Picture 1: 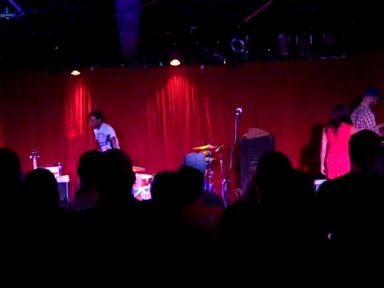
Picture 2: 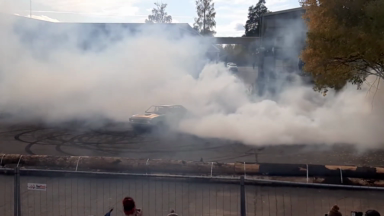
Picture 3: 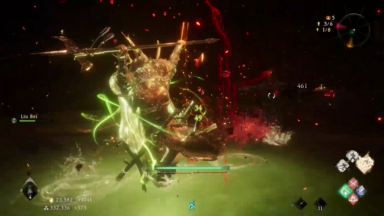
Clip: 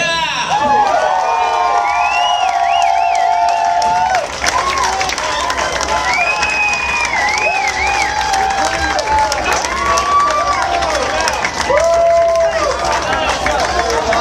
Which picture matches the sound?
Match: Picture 1